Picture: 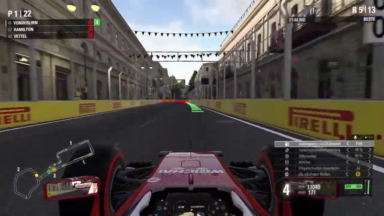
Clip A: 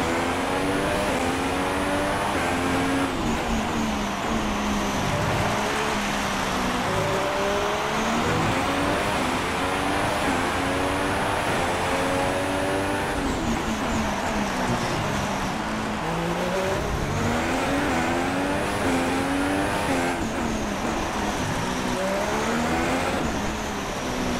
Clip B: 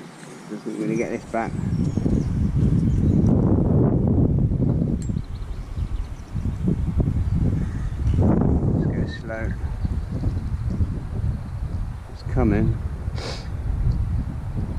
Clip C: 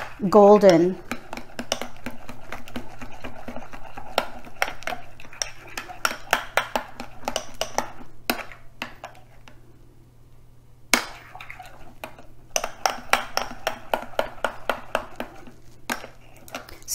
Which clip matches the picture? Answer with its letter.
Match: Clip A